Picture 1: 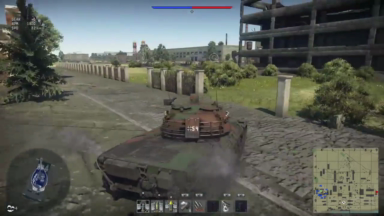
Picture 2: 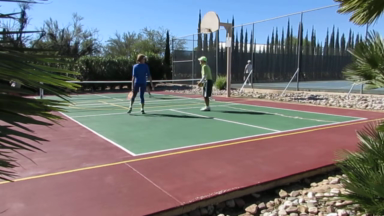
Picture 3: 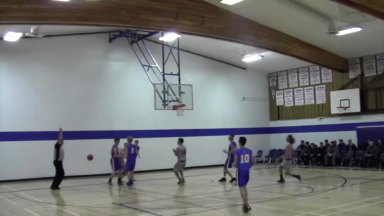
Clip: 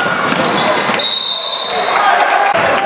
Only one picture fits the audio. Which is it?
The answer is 3